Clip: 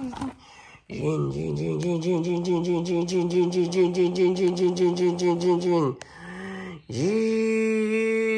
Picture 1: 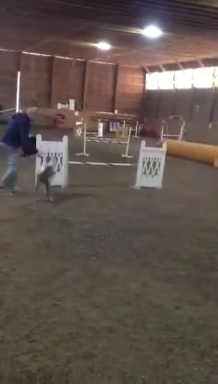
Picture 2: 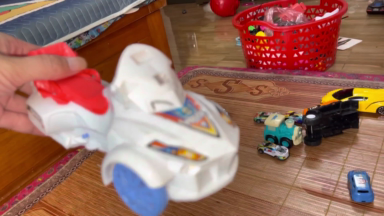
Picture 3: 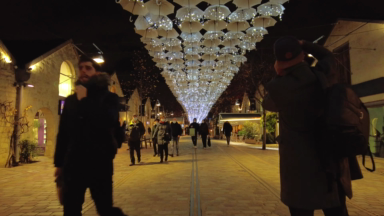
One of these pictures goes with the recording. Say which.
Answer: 2